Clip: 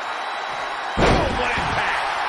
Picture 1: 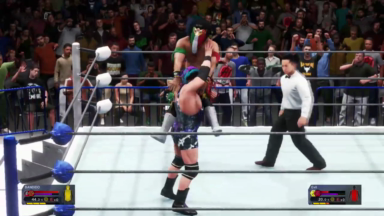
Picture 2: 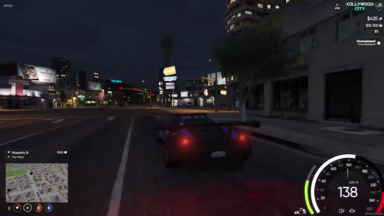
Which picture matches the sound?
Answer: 1